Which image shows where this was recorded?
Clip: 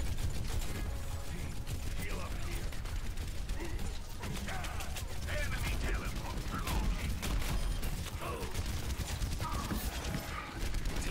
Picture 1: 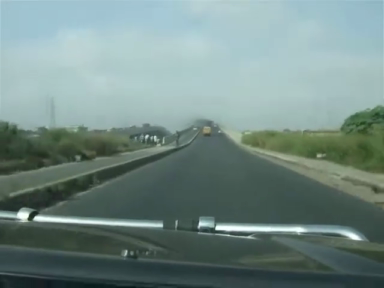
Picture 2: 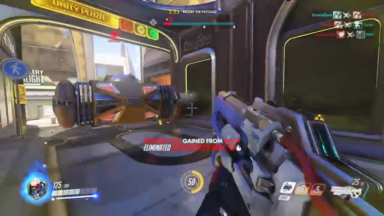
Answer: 2